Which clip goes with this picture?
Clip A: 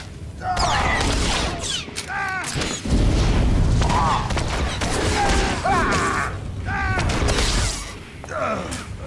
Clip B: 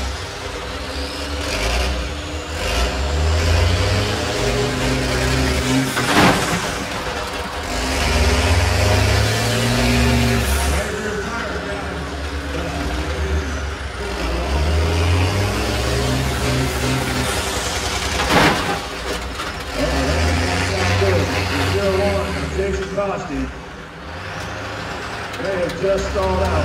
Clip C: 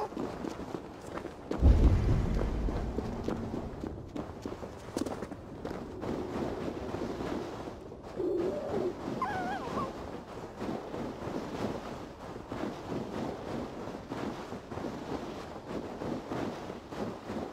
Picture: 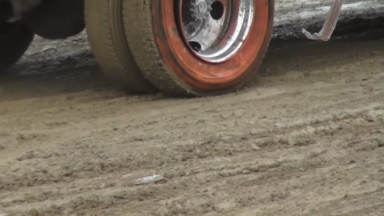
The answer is B